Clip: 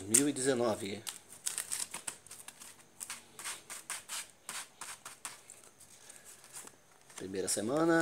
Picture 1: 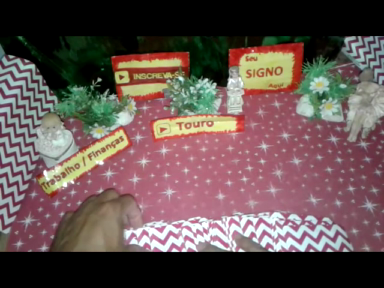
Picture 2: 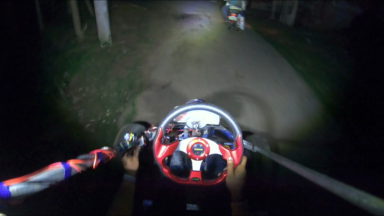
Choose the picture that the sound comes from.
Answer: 1